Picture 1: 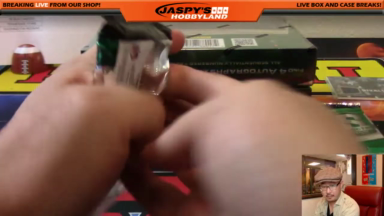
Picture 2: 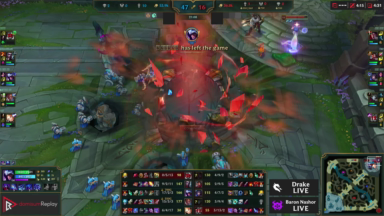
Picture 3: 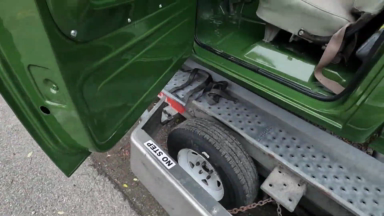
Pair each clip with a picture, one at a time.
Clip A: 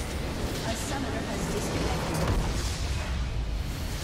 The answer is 2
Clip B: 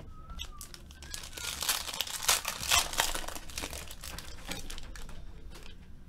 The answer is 1